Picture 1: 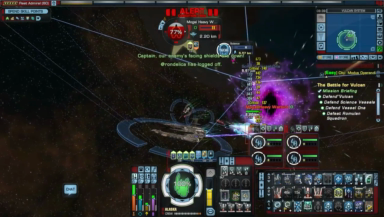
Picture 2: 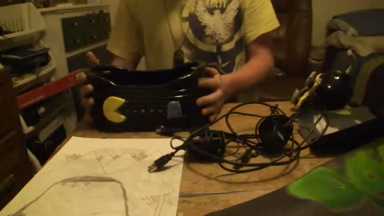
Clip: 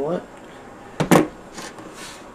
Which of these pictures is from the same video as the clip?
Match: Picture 2